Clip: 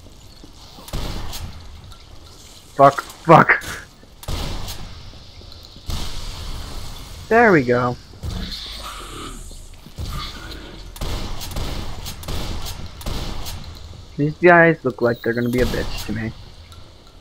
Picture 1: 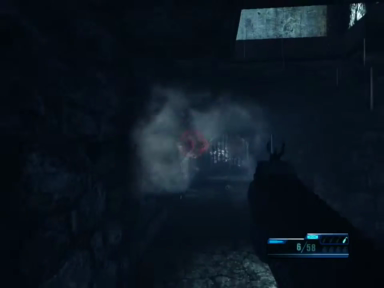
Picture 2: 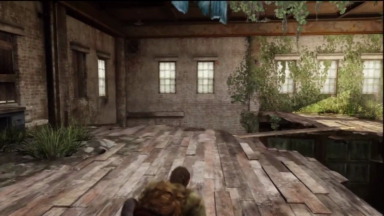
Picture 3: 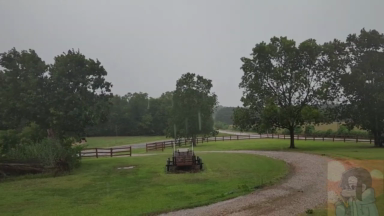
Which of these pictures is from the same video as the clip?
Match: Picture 1